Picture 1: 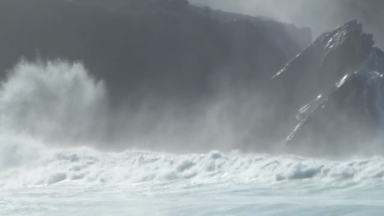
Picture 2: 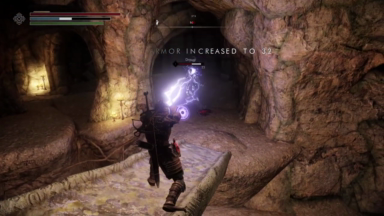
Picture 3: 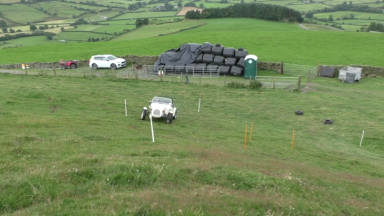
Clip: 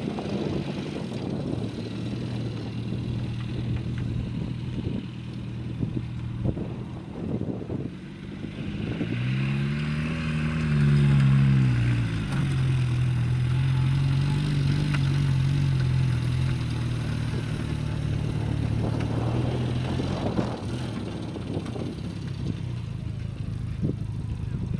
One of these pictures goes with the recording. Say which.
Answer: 3